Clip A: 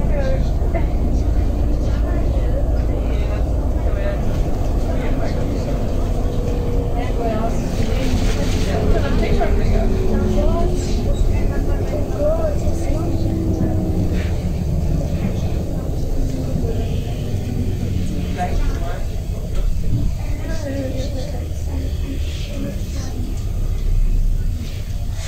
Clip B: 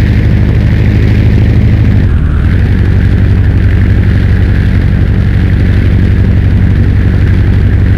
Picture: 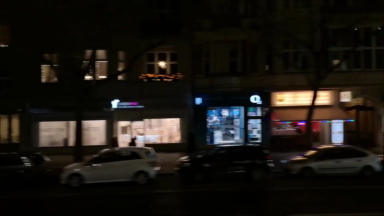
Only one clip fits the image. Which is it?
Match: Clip A